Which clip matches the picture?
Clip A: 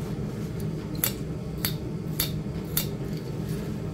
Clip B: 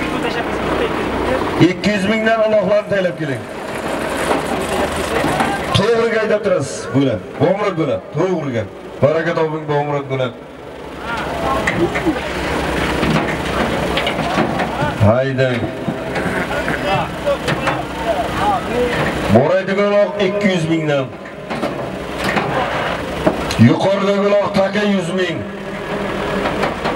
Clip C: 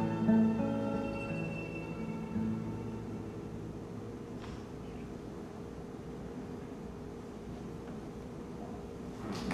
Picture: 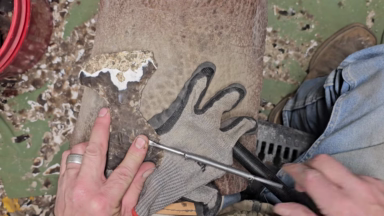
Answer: A